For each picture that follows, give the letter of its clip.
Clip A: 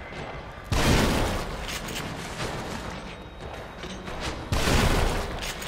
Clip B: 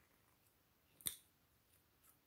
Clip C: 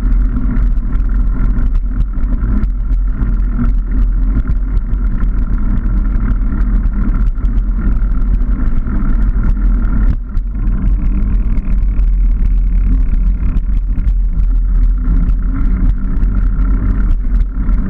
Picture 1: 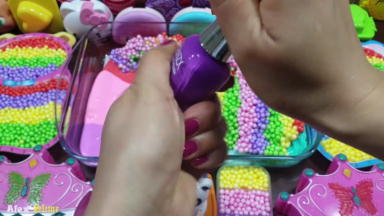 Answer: B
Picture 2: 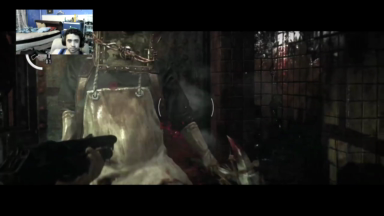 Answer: A